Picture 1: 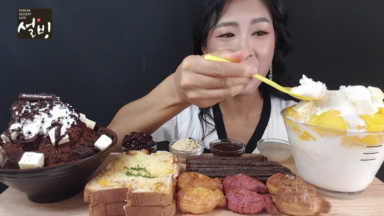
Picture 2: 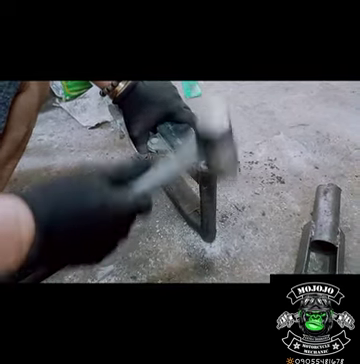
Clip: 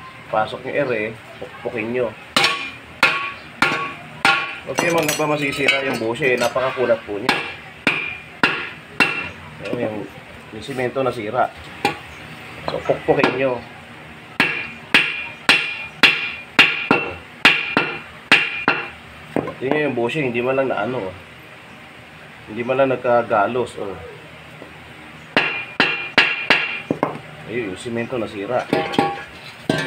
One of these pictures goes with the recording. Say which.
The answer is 2